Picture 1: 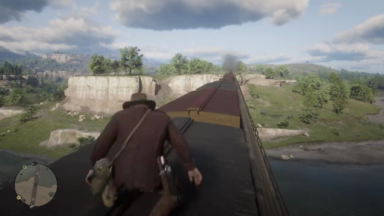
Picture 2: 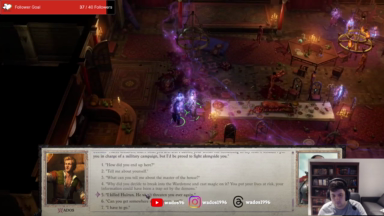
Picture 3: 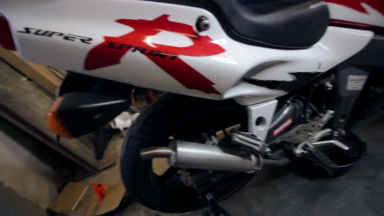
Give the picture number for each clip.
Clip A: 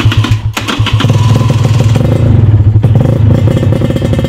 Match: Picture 3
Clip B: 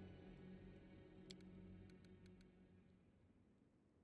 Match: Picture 2